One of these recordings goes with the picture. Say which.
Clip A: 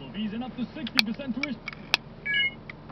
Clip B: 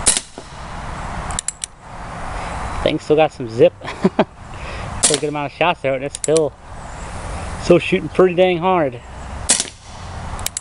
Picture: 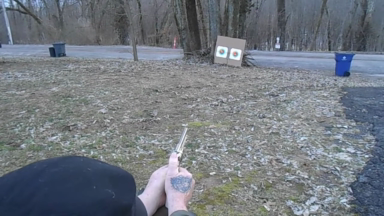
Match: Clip B